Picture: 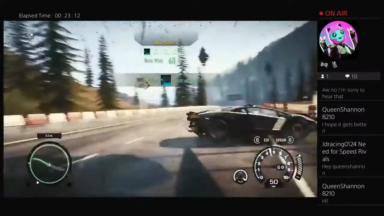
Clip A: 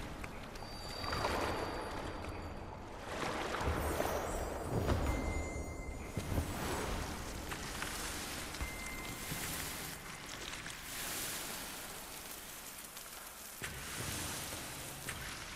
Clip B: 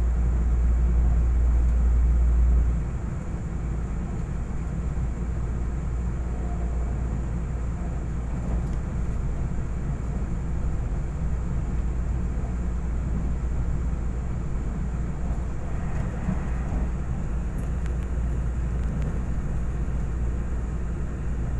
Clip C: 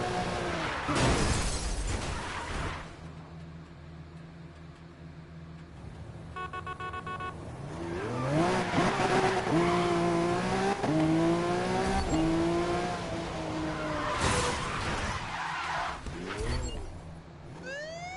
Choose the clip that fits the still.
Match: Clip C